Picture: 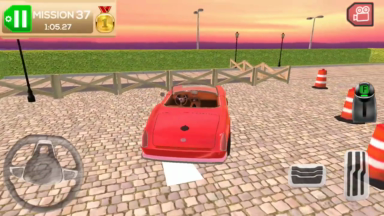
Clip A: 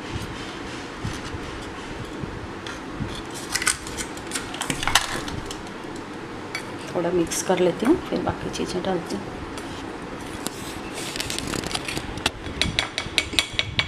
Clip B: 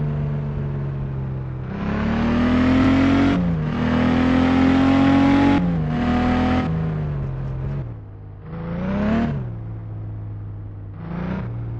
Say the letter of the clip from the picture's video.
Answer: B